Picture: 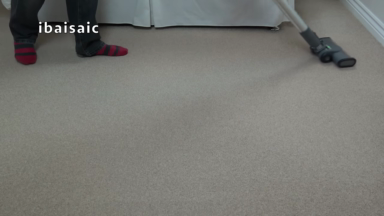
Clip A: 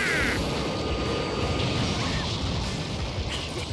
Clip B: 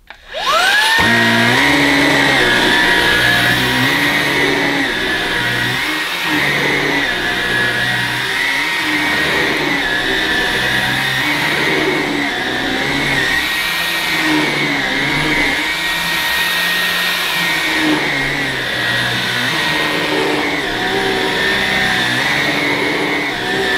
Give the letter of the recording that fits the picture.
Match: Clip B